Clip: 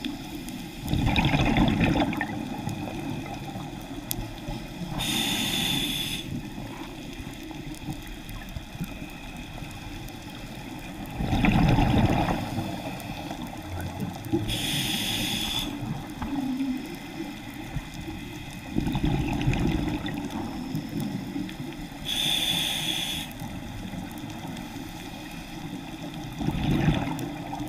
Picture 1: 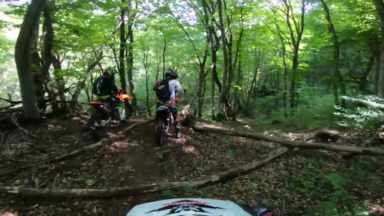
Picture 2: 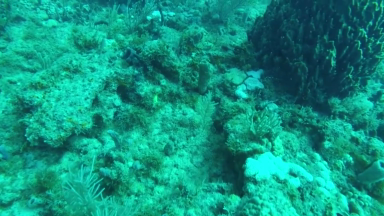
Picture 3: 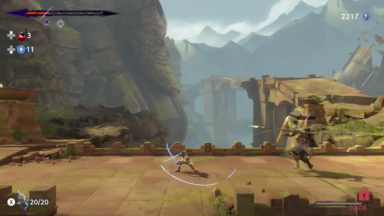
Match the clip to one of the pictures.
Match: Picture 2